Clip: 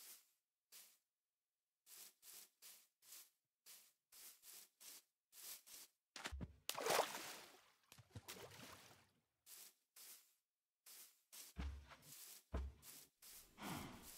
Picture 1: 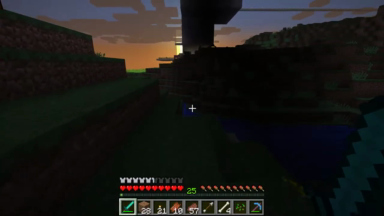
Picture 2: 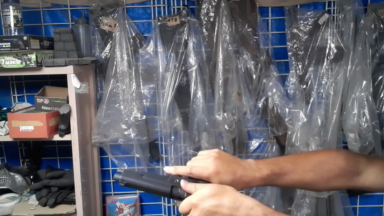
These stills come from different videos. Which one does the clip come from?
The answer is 1